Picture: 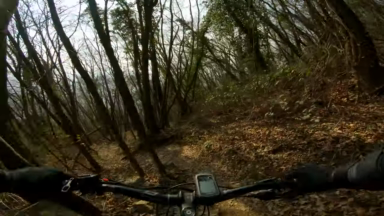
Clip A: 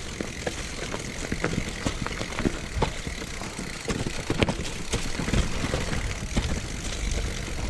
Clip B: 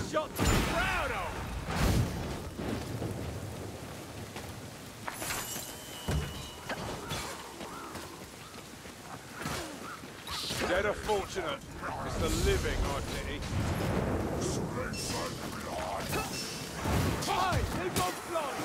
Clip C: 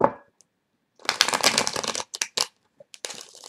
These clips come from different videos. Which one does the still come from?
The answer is A